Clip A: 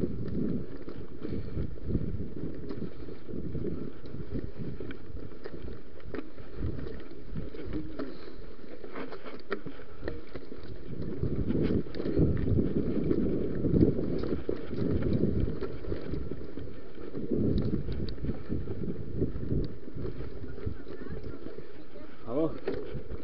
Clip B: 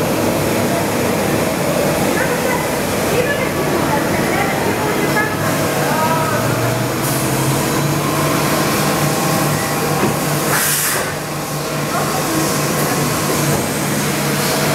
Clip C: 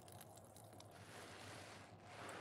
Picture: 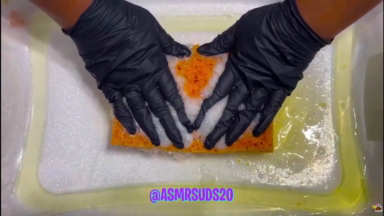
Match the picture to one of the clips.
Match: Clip C